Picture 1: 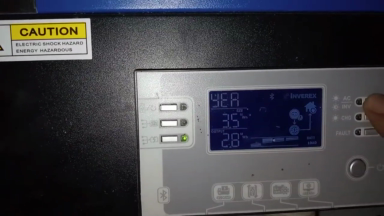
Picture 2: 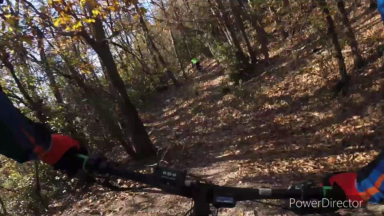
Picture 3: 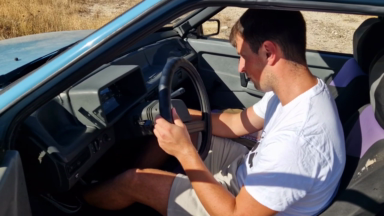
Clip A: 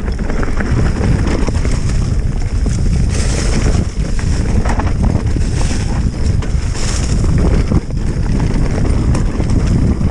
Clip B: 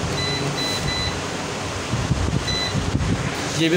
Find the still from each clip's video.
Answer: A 2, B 1